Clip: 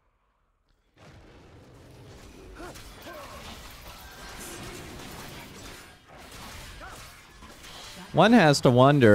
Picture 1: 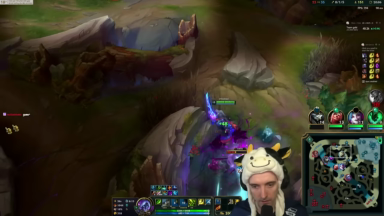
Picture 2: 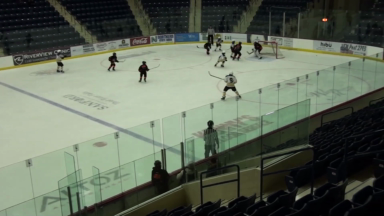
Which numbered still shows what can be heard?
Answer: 1